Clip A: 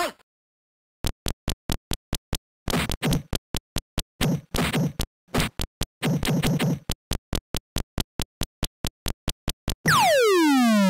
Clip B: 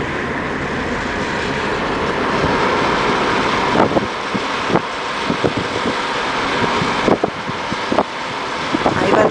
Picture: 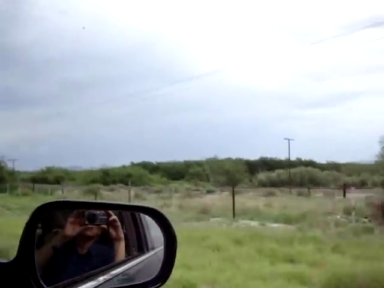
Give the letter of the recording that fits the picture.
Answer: B